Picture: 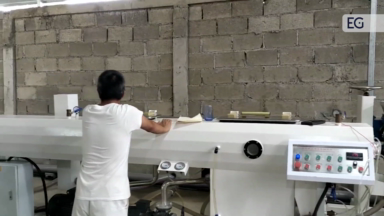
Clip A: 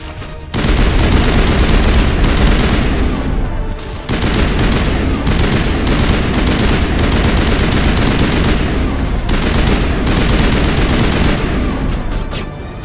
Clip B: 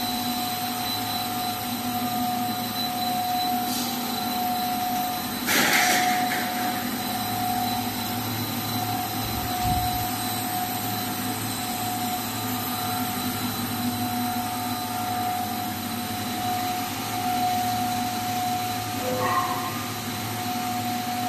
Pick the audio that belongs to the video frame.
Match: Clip B